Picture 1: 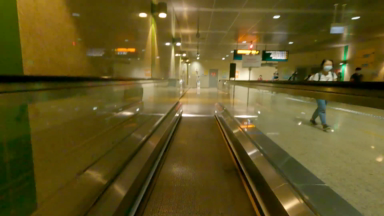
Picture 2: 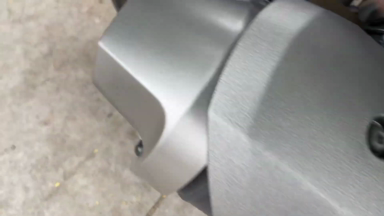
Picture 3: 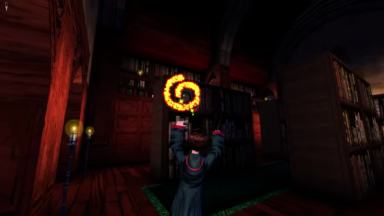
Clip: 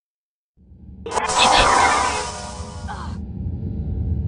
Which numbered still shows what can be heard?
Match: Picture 3